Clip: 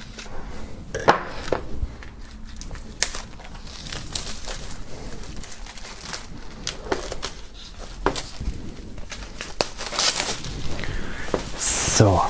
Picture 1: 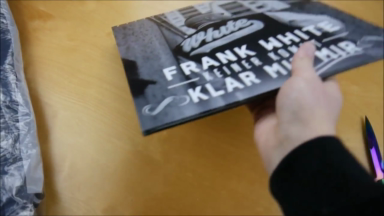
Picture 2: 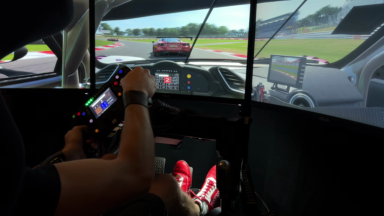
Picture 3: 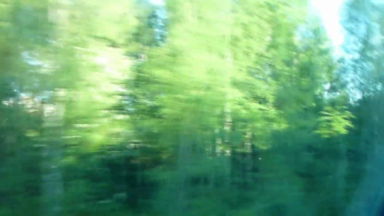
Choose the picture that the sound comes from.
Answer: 1